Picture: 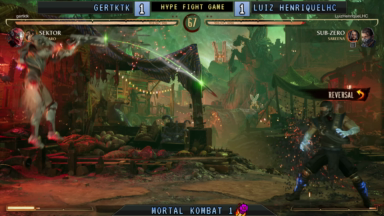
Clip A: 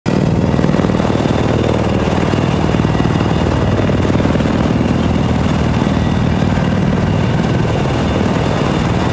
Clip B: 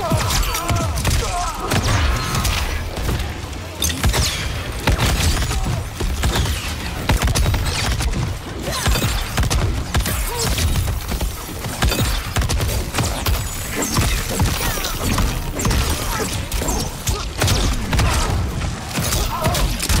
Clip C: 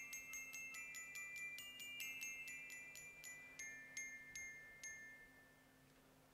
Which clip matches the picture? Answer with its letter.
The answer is B